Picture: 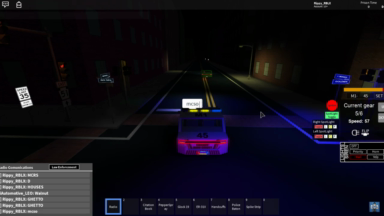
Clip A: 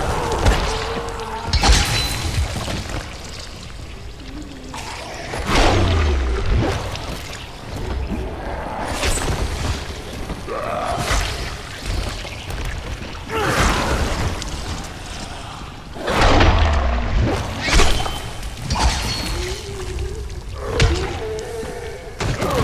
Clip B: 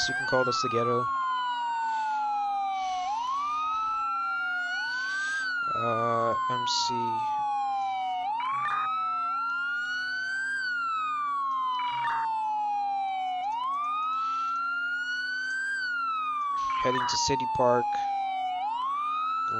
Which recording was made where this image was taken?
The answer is B